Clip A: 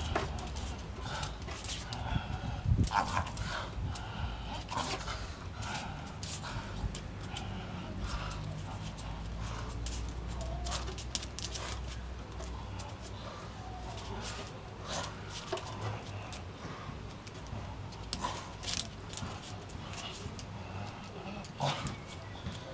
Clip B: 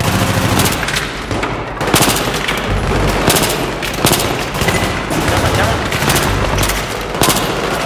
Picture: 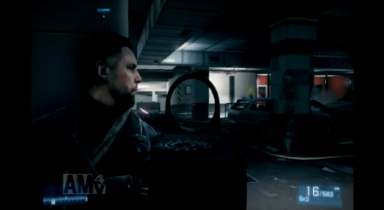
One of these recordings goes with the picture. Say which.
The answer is B